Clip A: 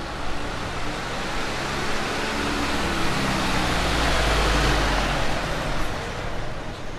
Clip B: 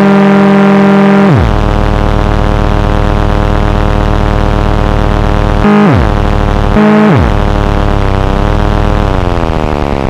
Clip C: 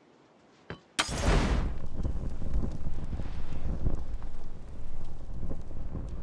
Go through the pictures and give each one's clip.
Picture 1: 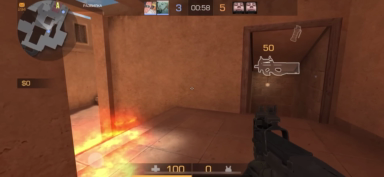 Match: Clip C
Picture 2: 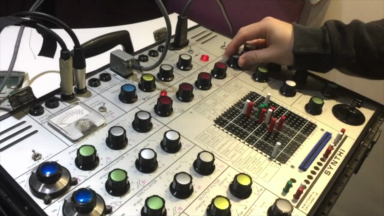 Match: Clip B